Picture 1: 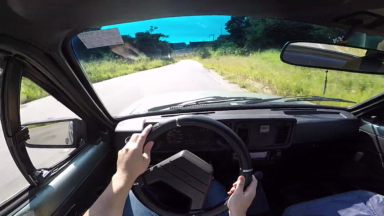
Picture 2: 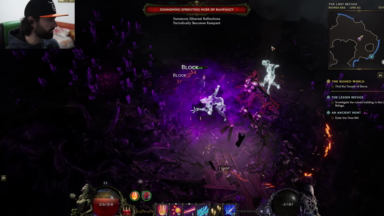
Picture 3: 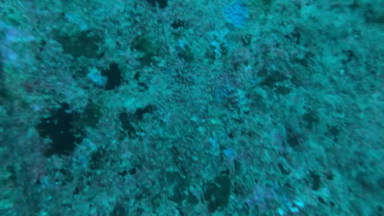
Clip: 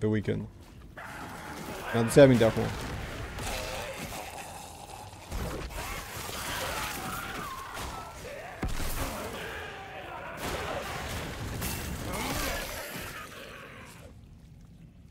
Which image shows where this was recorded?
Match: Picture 2